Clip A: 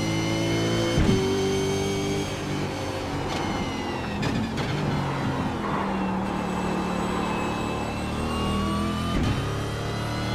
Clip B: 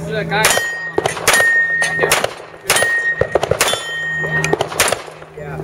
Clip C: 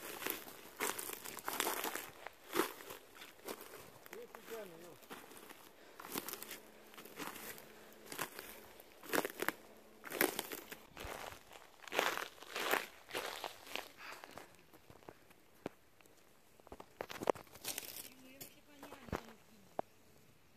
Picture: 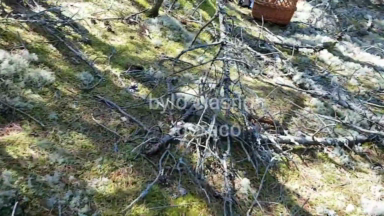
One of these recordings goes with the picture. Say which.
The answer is C